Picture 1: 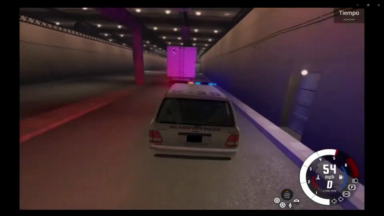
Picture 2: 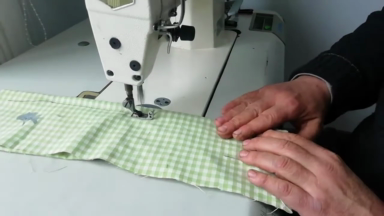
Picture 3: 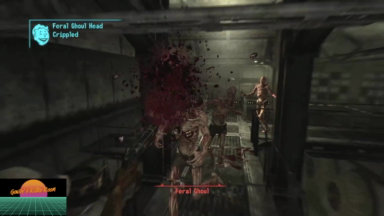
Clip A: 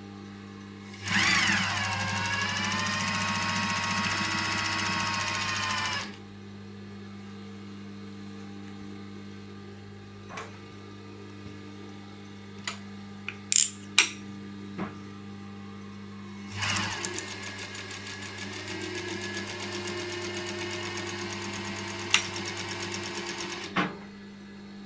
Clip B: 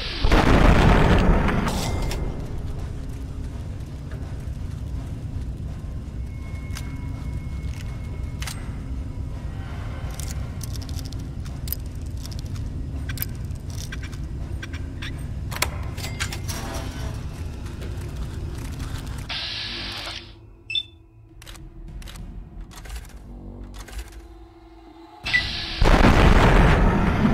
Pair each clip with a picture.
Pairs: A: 2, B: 3